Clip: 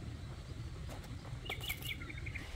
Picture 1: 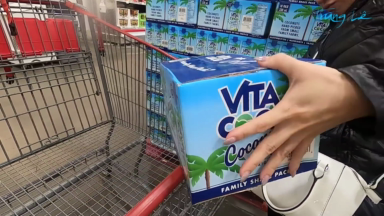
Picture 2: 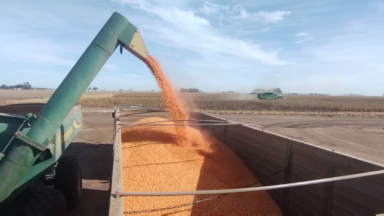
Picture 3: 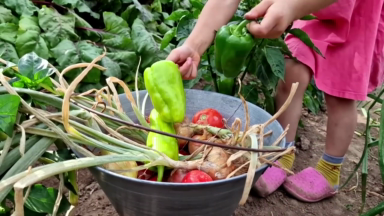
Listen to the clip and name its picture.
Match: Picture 3